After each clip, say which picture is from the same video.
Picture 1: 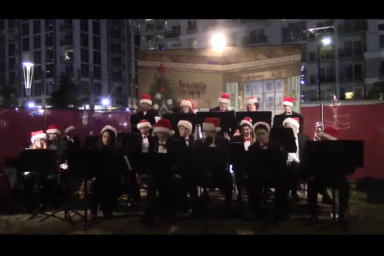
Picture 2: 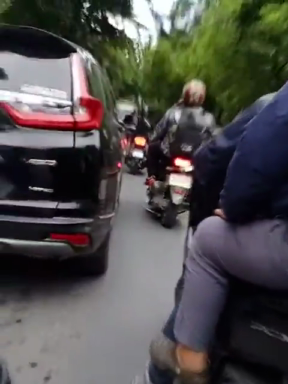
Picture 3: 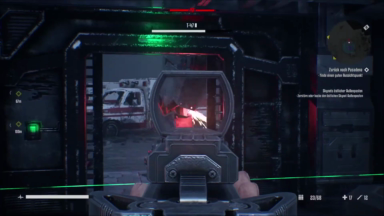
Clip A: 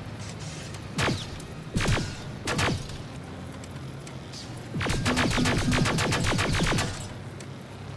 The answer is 3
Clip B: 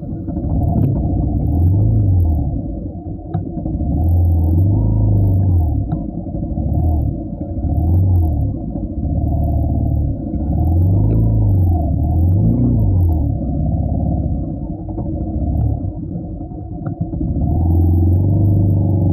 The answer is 2